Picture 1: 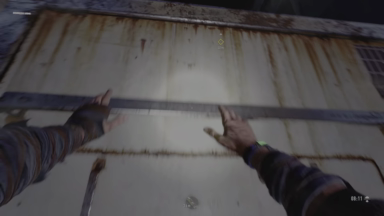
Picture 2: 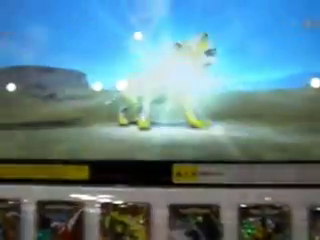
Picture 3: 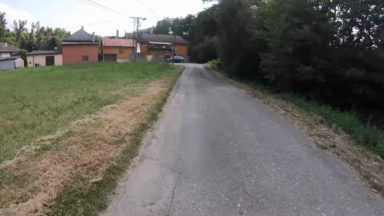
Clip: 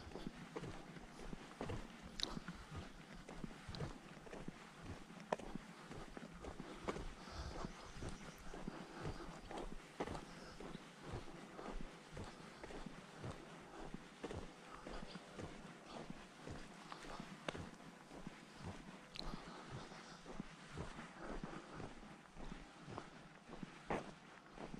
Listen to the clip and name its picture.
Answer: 3